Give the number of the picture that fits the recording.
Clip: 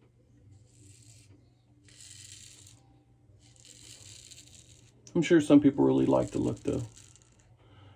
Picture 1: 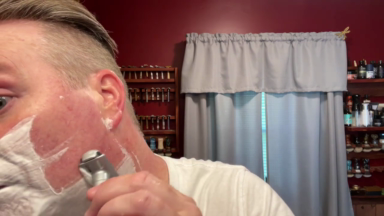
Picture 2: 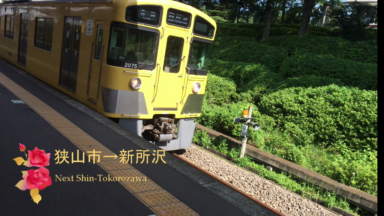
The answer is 1